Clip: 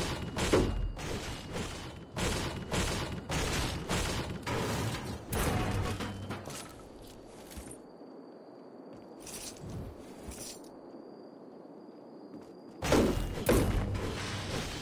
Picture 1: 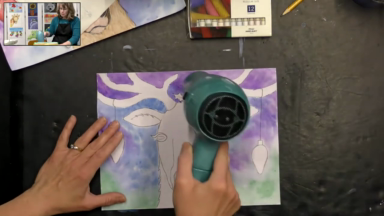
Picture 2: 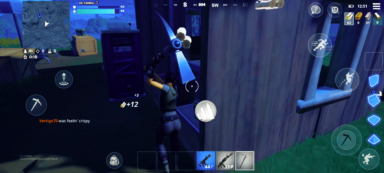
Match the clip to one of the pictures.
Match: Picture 2